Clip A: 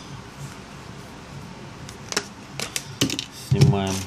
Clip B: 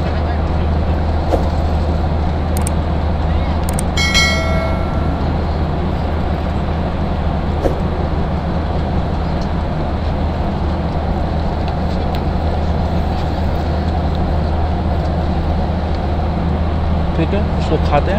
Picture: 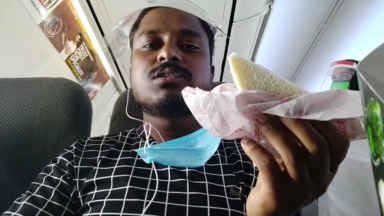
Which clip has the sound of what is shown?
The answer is B